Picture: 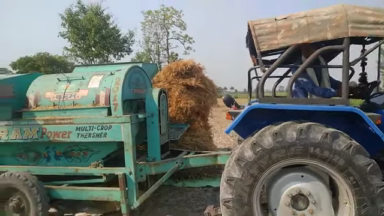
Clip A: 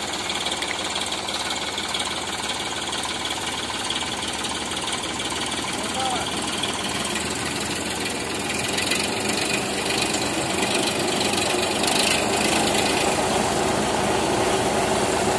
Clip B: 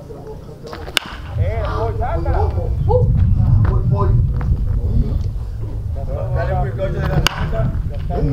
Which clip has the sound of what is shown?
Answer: A